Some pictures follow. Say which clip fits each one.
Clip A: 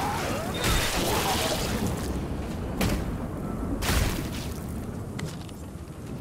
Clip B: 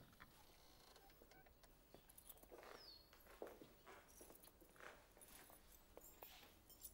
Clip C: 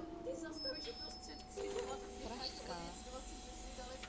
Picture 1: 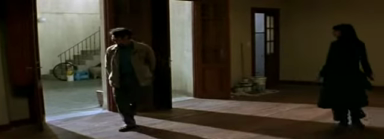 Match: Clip B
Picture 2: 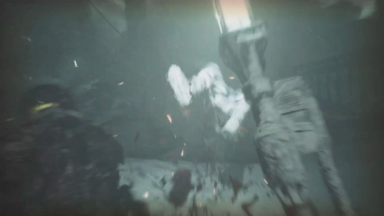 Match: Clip A